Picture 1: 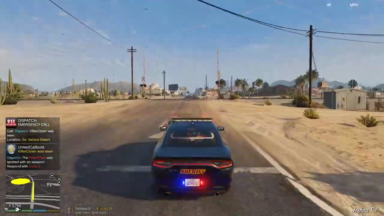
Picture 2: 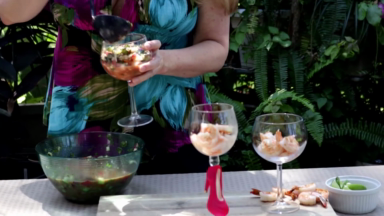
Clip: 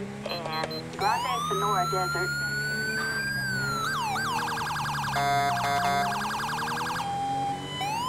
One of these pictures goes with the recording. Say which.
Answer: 1